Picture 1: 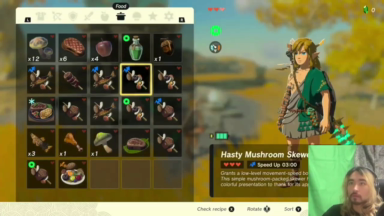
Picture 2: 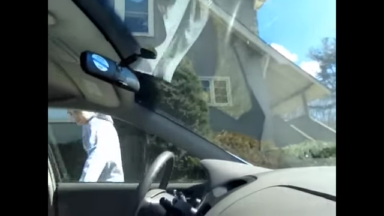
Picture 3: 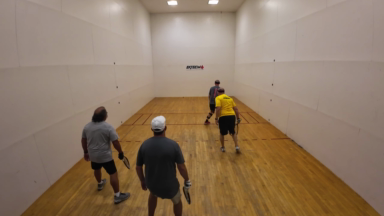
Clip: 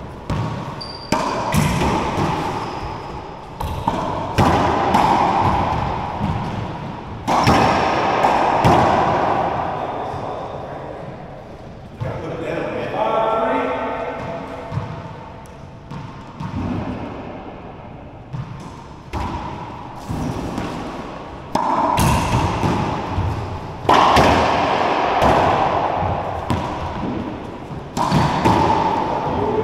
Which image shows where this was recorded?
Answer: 3